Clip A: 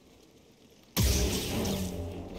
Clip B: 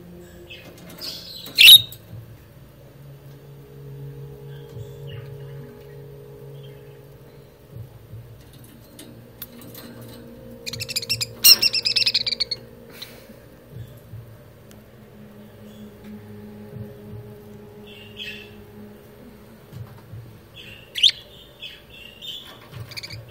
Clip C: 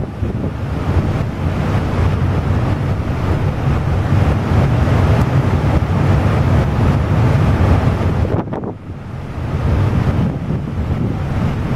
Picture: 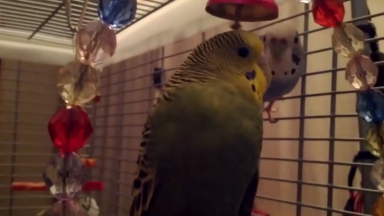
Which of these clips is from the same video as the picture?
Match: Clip B